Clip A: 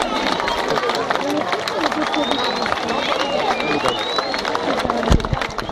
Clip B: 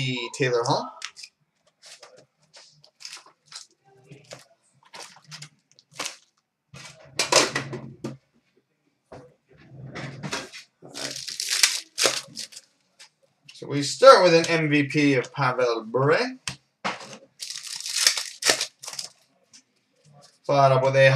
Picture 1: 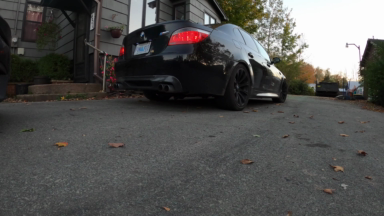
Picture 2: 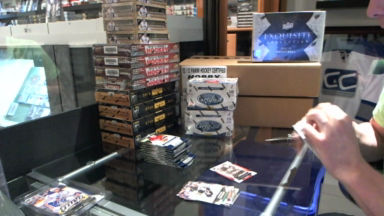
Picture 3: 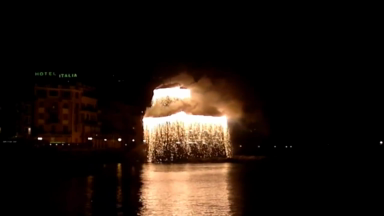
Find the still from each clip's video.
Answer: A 3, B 2